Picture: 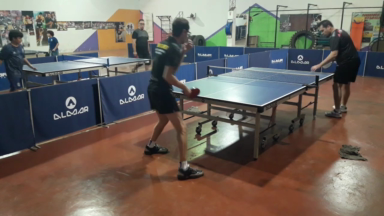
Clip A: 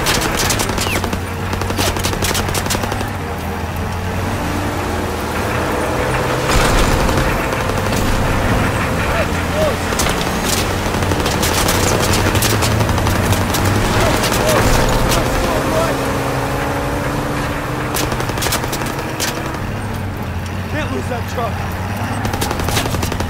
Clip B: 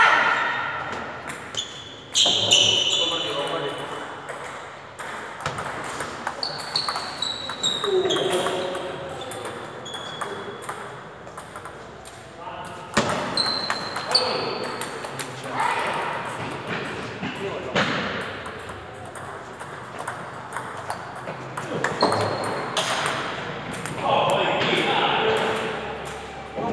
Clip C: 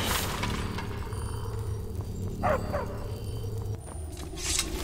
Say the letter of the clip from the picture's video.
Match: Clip B